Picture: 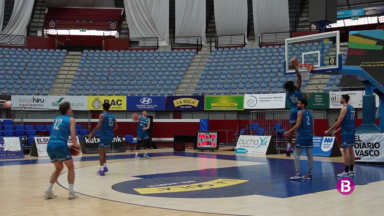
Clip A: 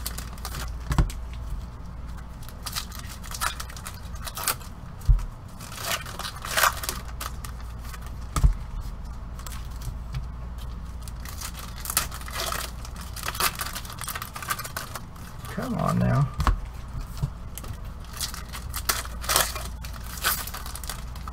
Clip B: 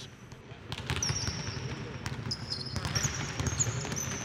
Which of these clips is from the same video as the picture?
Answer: B